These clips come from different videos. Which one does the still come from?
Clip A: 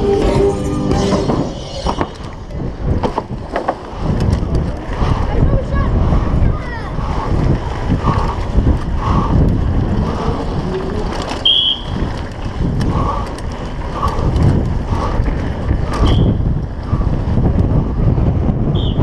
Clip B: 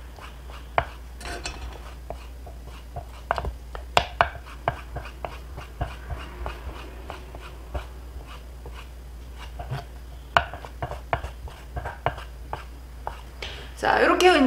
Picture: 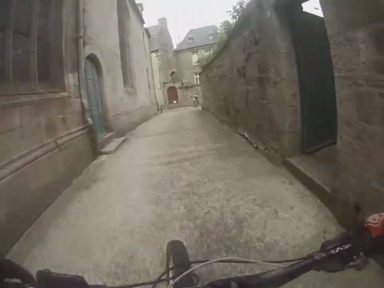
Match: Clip A